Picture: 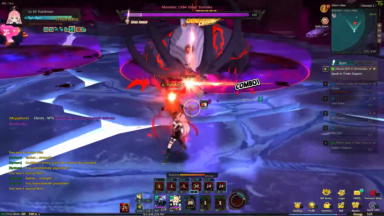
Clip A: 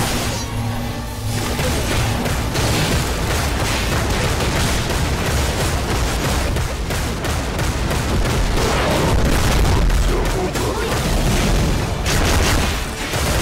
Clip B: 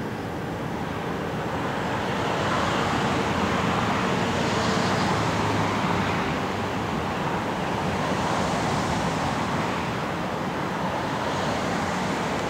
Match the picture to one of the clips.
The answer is A